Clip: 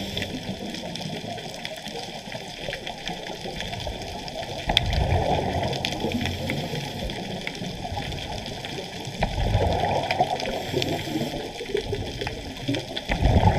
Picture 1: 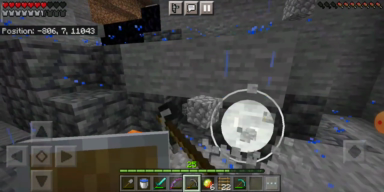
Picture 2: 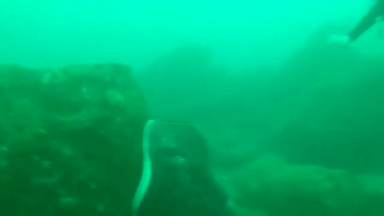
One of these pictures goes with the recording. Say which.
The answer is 2